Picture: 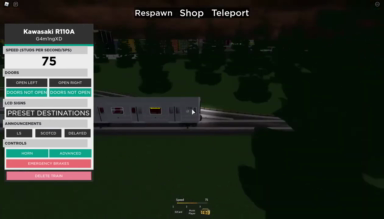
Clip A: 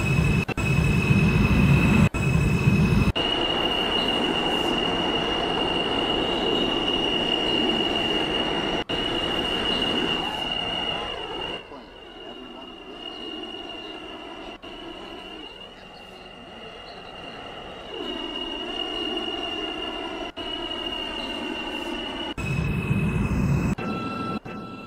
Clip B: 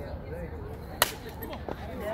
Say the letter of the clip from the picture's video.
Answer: A